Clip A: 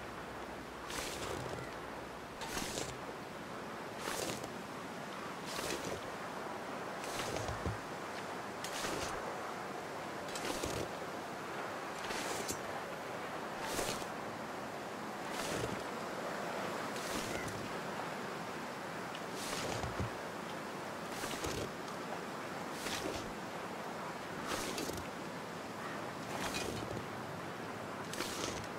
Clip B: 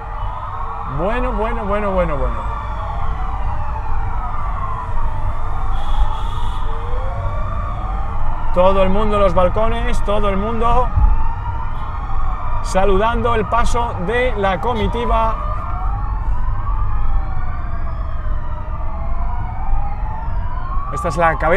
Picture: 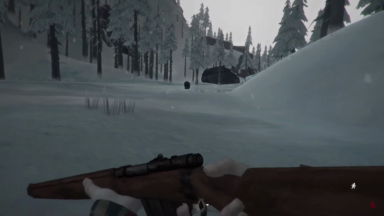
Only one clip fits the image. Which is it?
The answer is A